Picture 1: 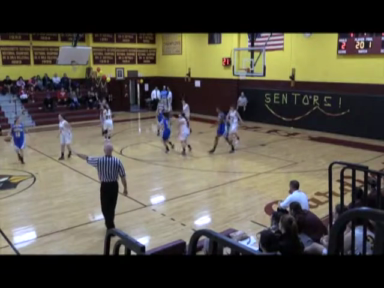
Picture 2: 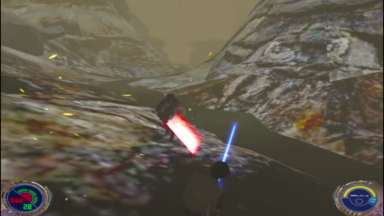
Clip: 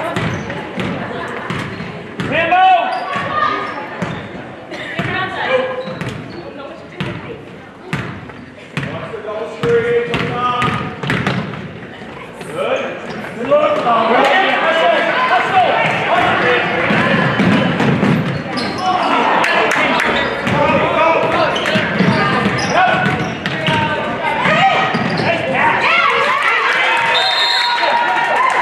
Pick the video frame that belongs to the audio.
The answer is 1